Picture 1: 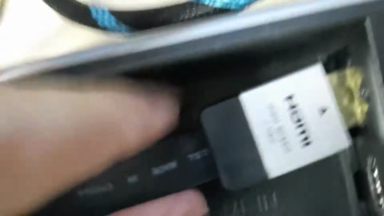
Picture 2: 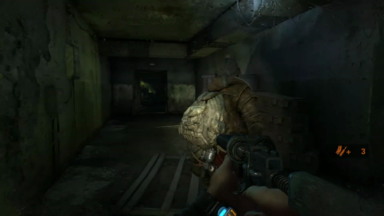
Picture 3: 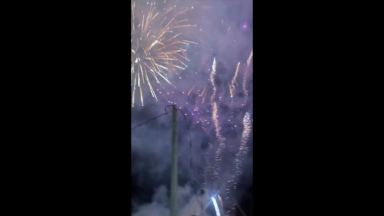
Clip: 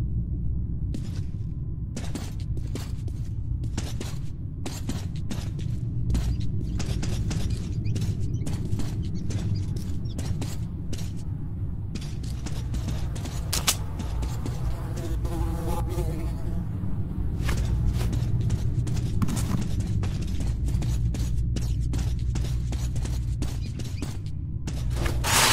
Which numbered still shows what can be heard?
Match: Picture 2